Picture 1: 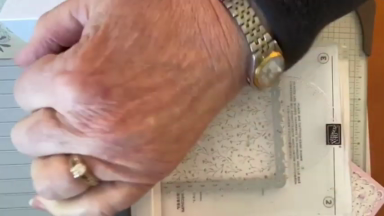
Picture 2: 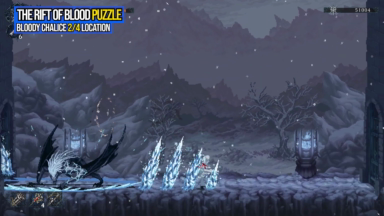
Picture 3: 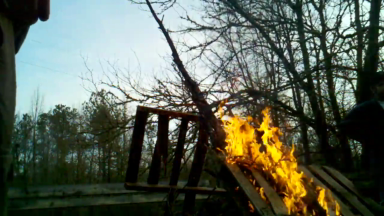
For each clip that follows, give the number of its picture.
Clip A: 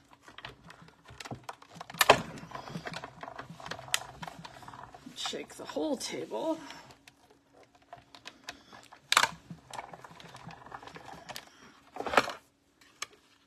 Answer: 1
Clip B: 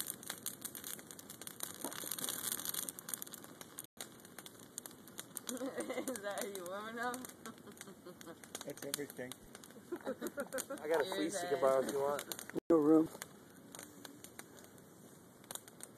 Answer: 3